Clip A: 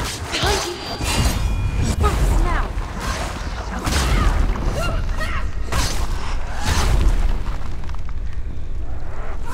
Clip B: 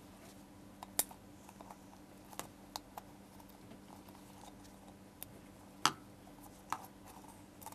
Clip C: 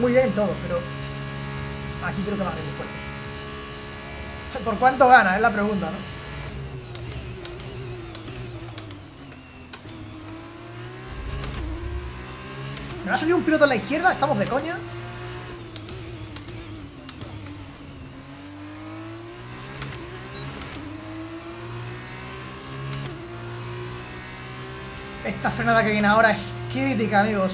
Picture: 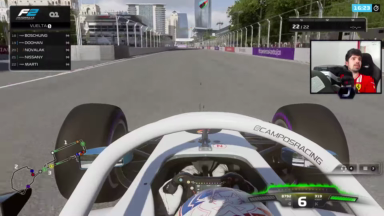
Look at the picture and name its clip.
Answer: C